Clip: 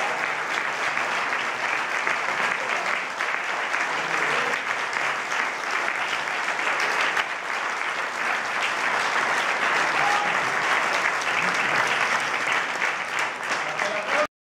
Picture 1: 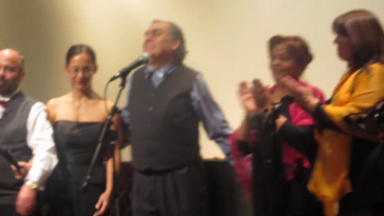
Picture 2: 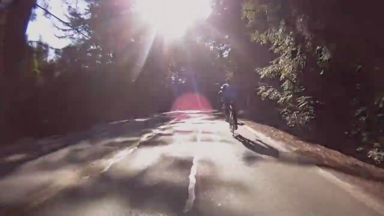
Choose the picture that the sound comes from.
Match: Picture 1